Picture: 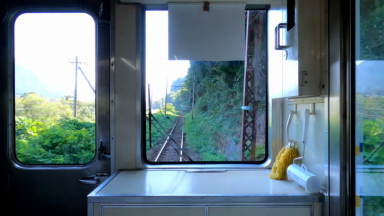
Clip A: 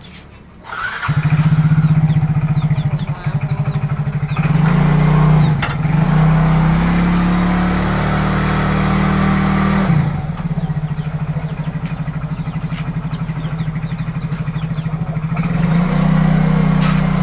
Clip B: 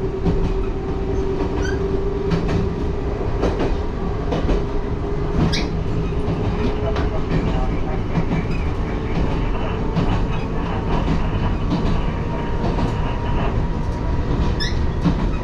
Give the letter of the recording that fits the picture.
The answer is B